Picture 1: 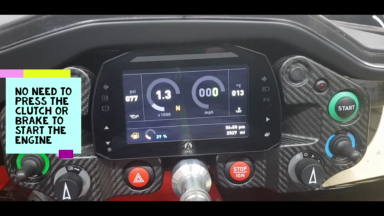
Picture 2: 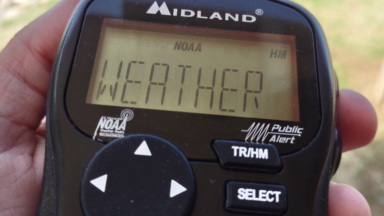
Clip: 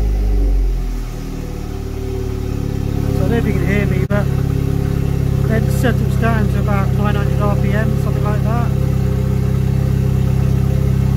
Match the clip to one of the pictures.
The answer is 1